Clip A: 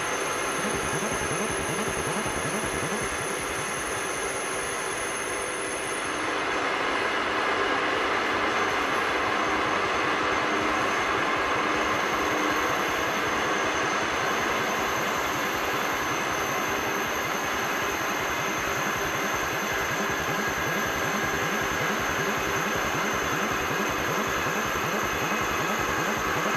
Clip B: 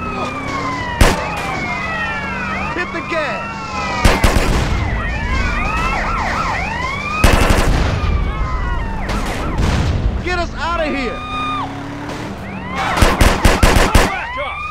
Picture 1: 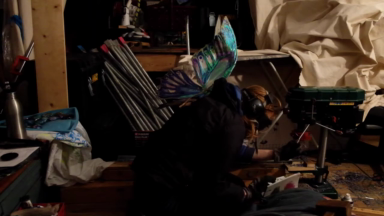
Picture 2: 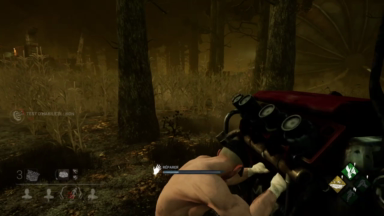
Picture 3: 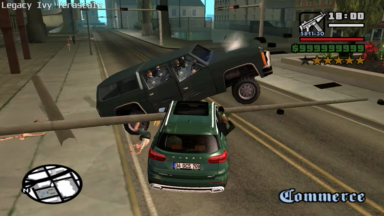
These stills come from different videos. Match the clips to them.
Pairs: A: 1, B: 3